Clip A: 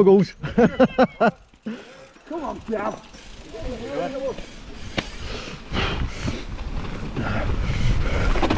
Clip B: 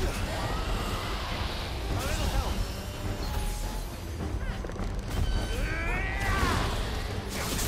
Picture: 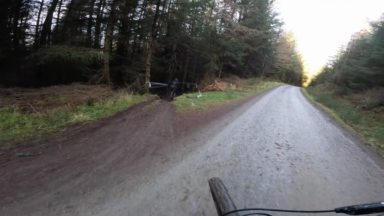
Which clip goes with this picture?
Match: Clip A